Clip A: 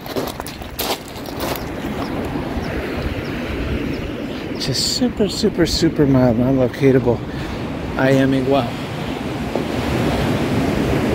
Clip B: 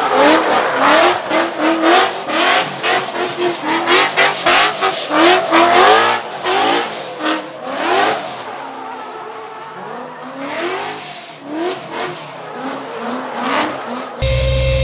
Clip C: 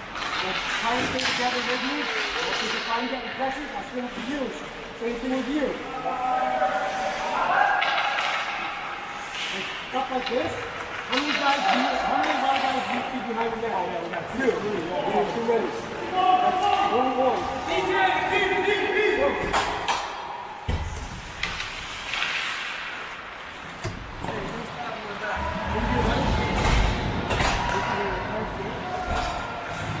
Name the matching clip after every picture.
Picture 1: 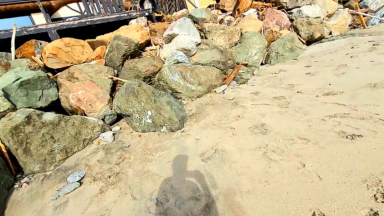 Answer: A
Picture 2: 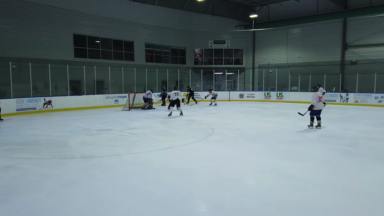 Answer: C